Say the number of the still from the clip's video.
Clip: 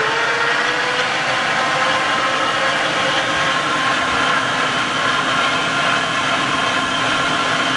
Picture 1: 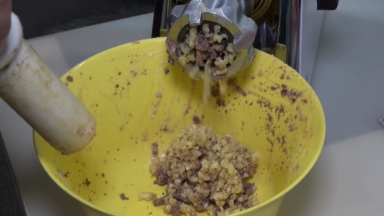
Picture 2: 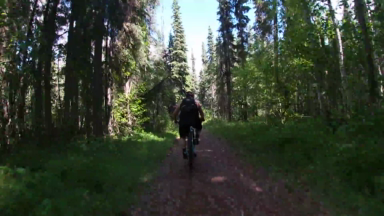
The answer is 1